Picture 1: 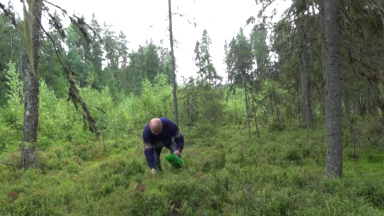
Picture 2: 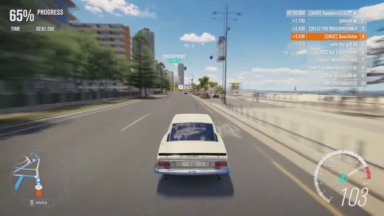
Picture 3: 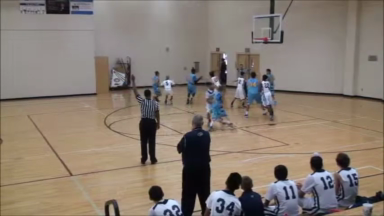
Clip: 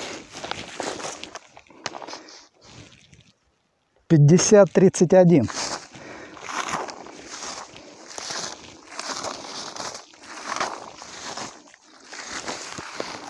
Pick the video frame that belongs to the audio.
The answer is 1